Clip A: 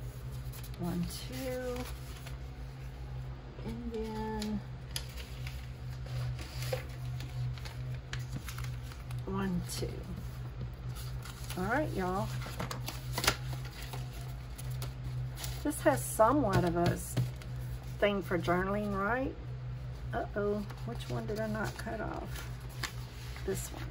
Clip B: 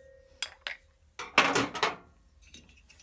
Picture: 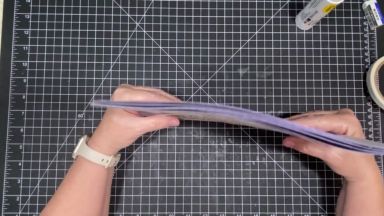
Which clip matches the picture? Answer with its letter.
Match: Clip A